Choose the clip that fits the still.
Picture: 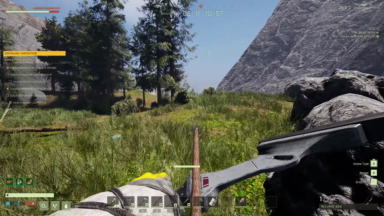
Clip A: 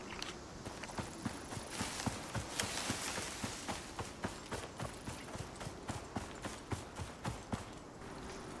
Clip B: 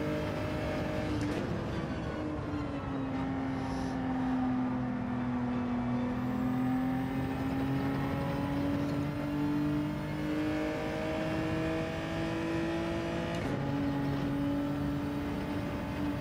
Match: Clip A